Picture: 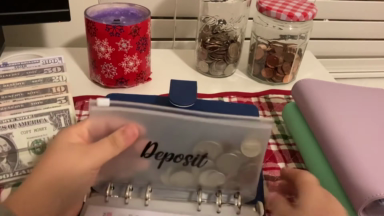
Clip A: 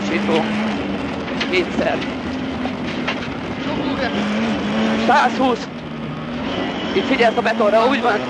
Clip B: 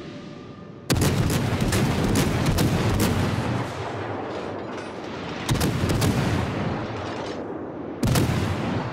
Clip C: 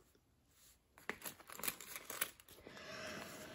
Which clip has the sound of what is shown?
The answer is C